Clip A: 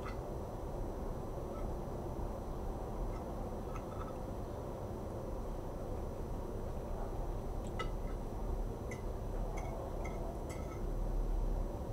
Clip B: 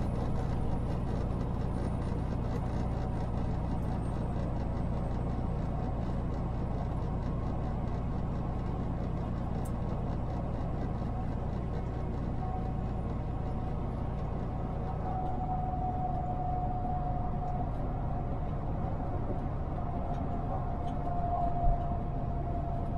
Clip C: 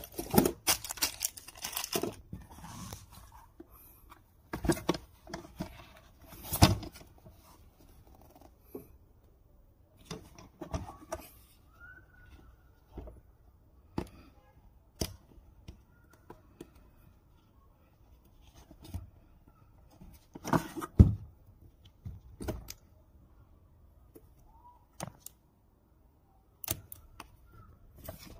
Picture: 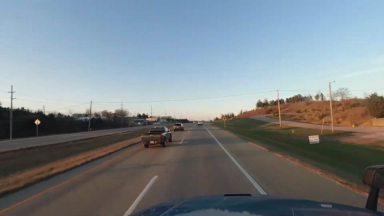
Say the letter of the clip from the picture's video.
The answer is B